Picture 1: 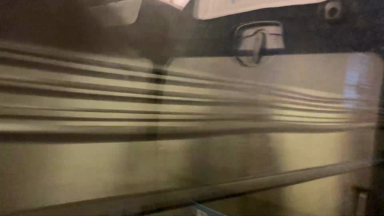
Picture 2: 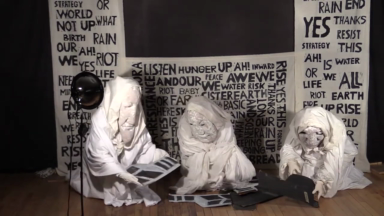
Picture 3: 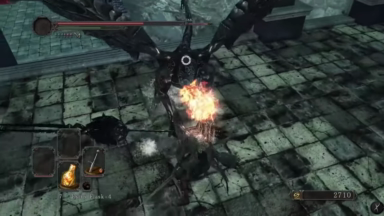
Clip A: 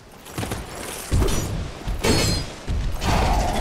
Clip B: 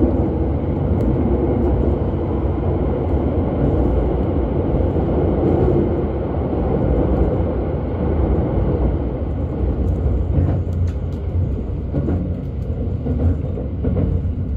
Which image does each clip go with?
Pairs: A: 3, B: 1